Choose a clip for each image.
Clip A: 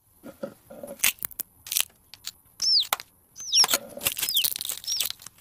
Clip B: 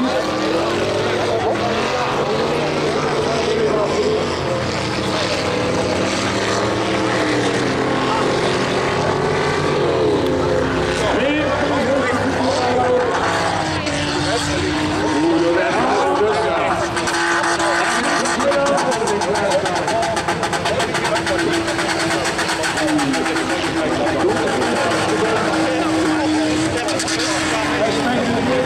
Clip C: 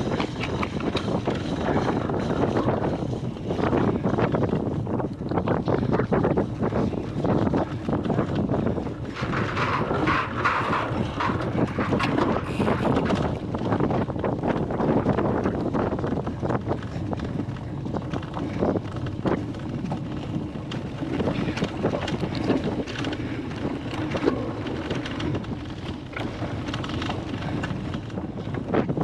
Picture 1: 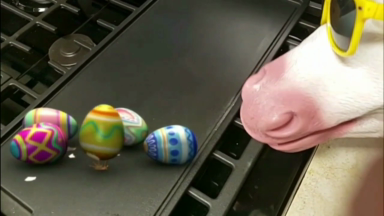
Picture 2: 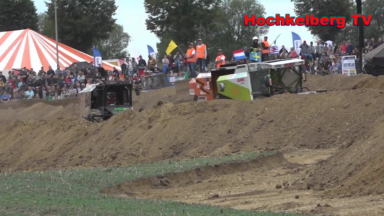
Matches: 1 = A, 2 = B